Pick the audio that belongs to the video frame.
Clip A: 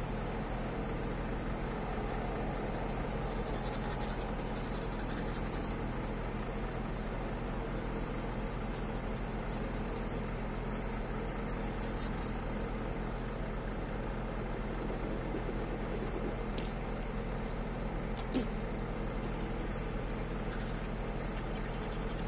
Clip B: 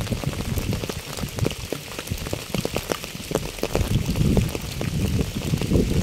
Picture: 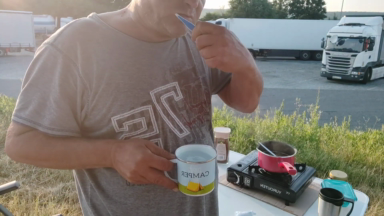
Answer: A